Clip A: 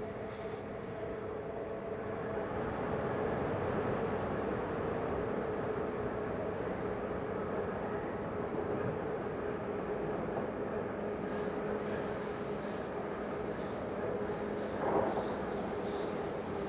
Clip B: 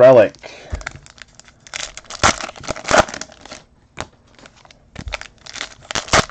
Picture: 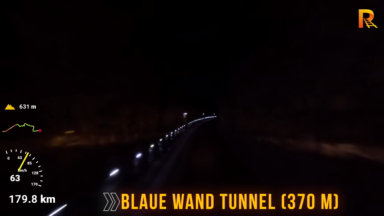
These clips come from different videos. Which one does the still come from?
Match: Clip A